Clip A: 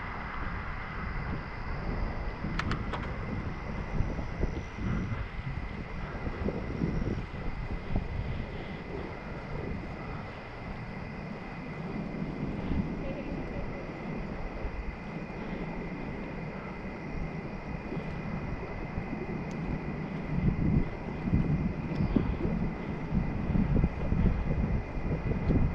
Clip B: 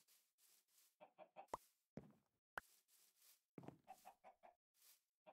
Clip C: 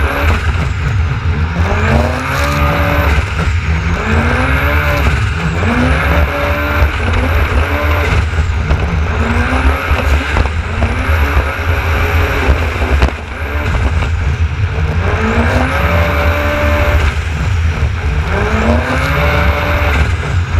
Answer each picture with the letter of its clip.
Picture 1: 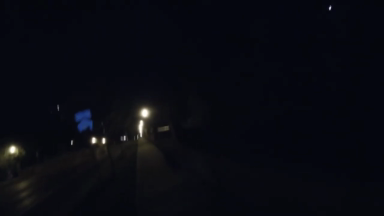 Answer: A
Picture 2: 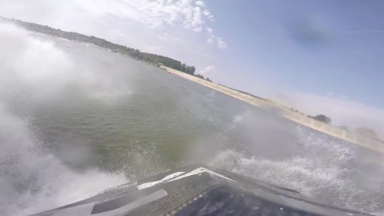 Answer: C